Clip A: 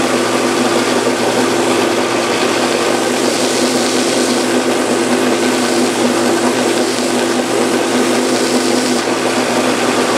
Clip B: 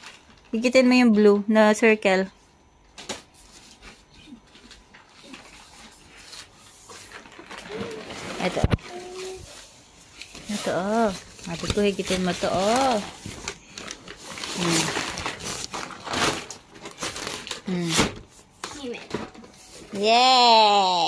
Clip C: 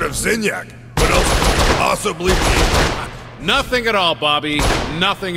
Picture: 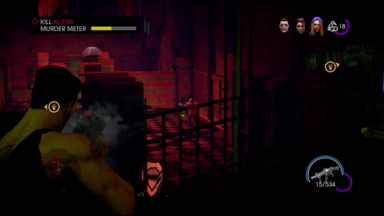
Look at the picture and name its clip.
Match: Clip C